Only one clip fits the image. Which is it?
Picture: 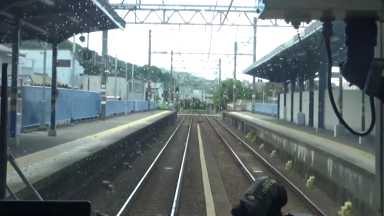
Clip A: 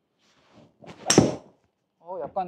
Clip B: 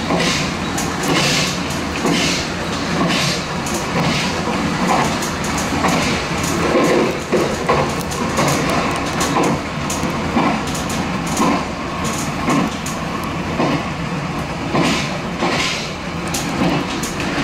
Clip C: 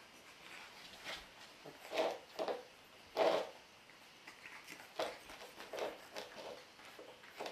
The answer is B